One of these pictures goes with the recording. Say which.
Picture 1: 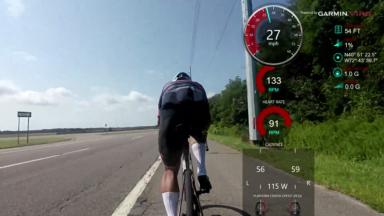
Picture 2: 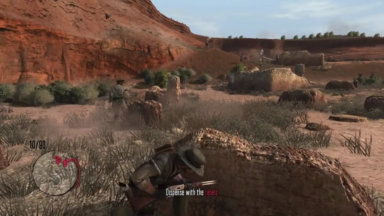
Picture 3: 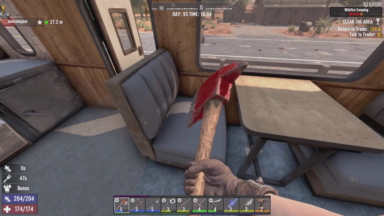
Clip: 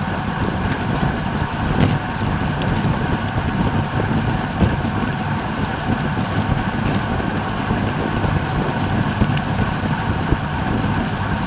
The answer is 1